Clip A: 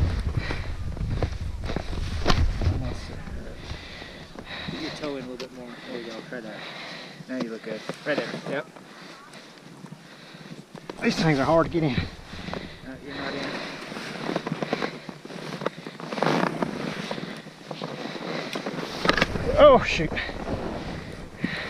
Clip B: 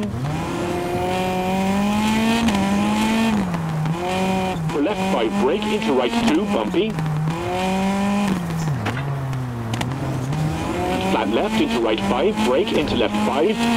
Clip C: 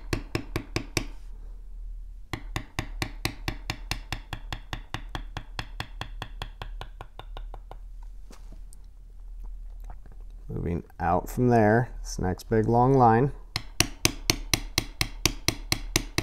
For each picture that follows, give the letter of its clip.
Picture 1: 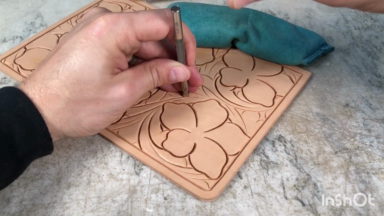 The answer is C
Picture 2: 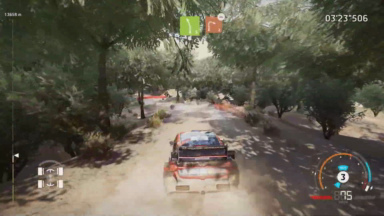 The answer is B